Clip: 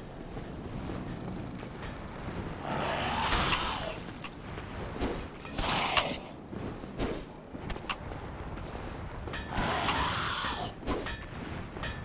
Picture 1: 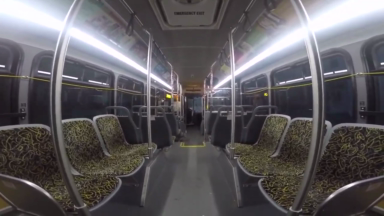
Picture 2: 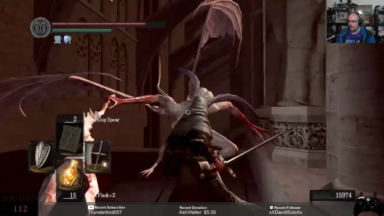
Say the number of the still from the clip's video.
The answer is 2